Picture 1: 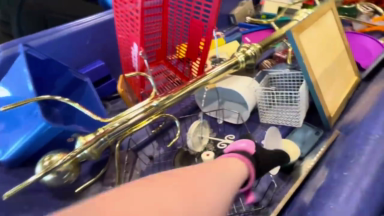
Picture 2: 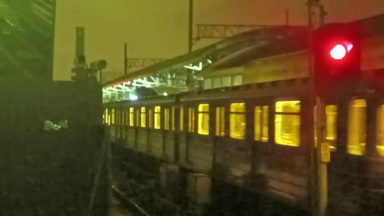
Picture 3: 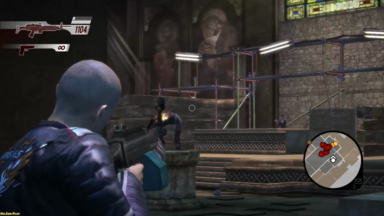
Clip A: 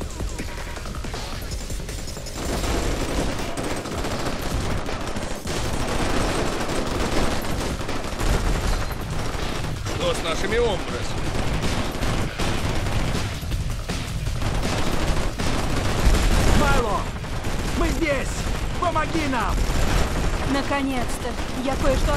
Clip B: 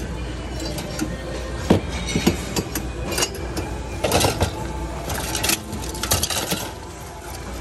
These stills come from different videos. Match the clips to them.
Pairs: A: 3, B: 1